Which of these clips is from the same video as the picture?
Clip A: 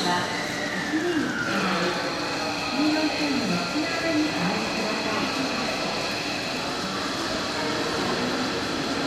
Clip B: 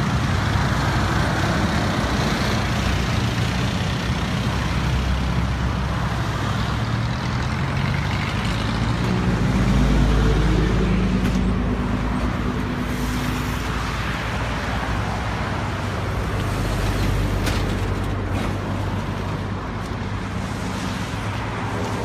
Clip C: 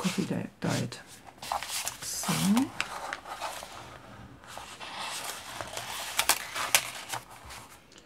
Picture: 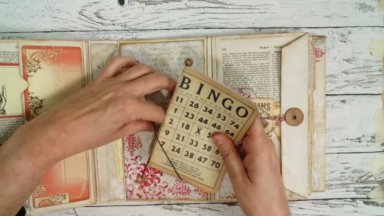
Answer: C